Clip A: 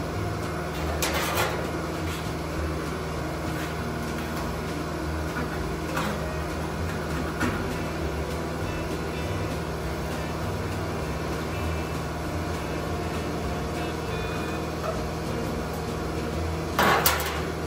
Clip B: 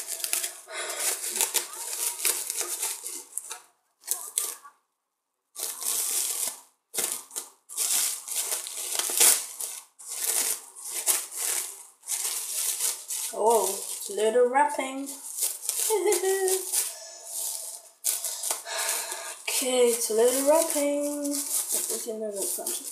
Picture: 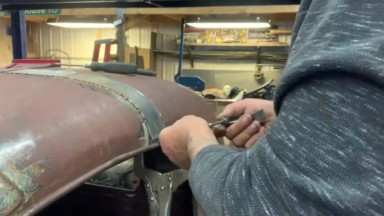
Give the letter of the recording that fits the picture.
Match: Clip A